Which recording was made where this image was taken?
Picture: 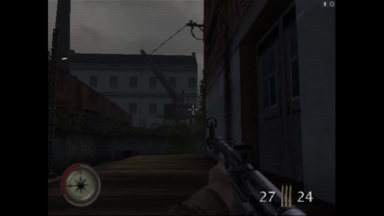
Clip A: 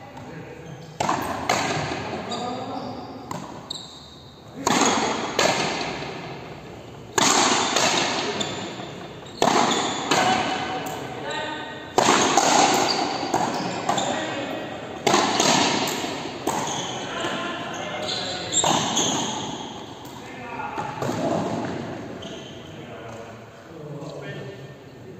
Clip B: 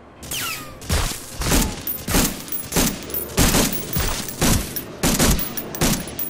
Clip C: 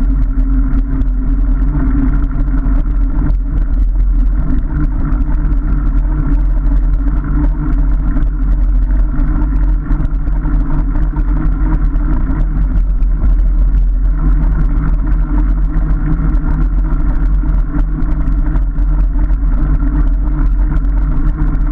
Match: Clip B